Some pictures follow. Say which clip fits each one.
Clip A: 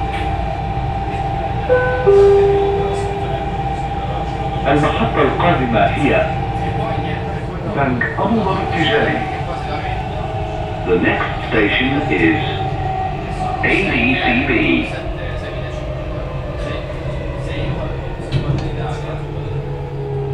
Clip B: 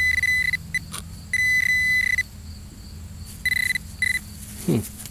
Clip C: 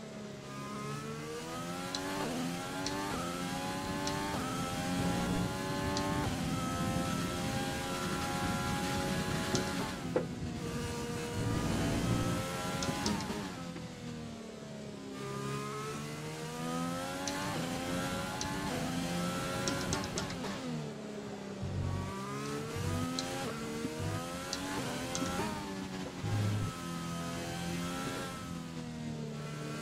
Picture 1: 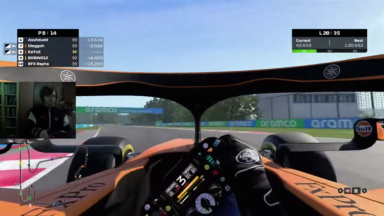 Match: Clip C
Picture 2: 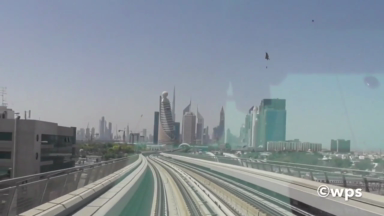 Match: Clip A